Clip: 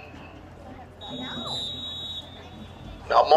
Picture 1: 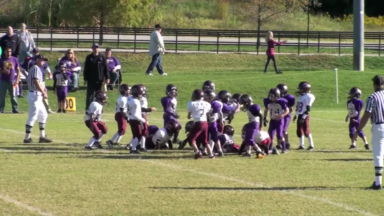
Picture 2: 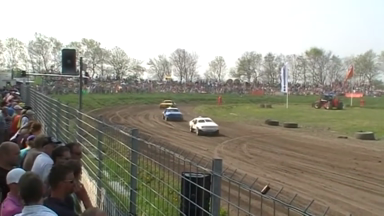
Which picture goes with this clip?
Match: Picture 1